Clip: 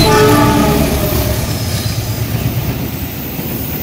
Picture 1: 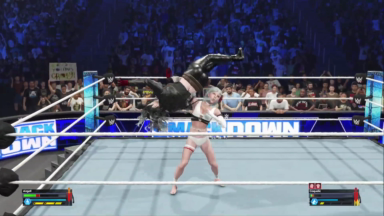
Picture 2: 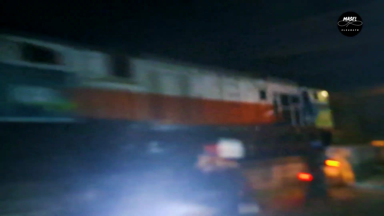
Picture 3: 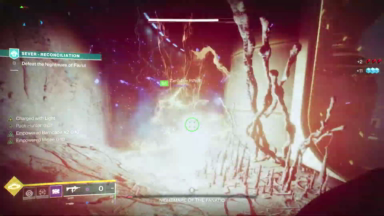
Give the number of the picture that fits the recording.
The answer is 2